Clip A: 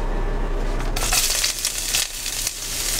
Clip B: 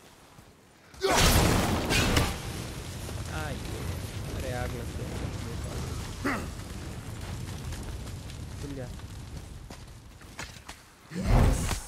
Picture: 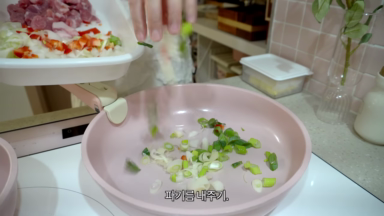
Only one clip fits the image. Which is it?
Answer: A